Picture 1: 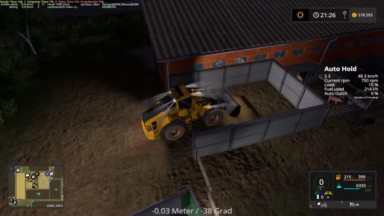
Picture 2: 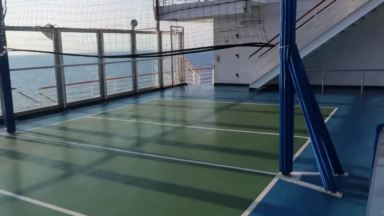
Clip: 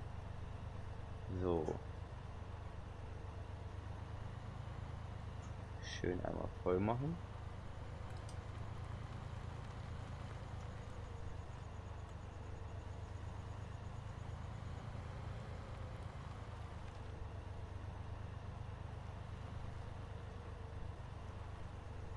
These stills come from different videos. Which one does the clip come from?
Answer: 1